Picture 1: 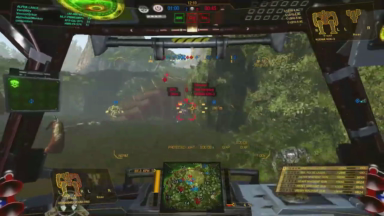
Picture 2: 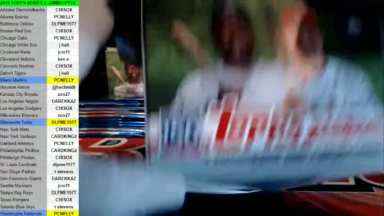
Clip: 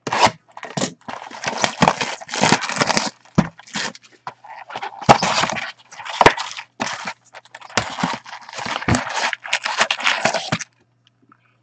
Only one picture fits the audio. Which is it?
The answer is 2